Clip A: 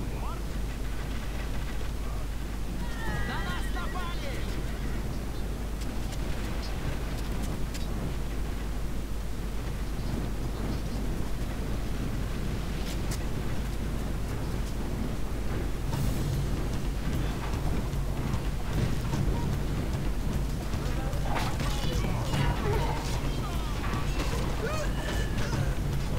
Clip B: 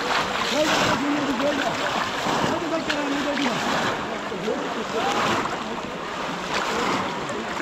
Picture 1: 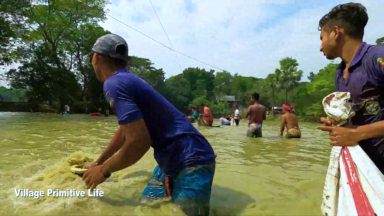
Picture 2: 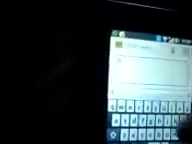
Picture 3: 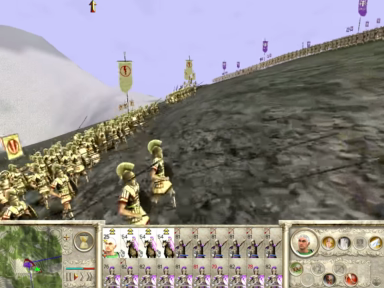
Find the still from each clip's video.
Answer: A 3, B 1